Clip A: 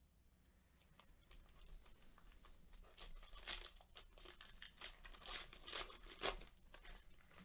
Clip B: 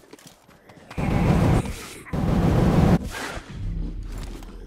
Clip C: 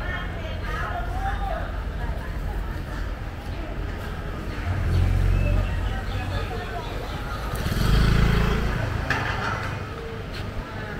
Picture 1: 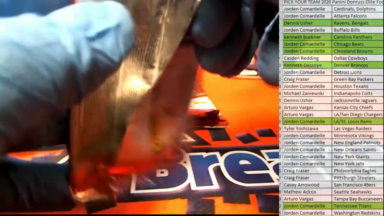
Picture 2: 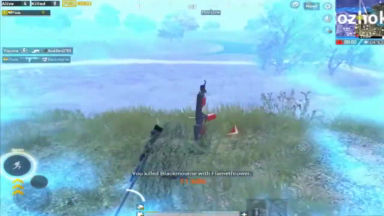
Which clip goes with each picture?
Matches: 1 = A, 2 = B